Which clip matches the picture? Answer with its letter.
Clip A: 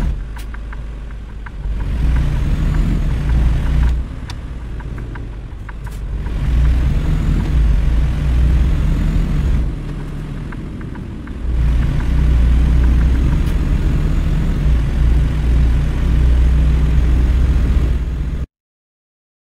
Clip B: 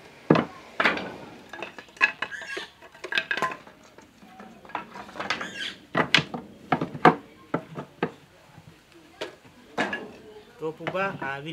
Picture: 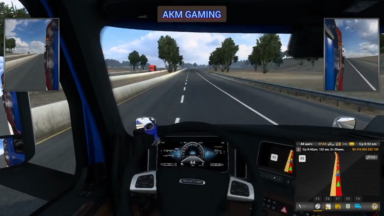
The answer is A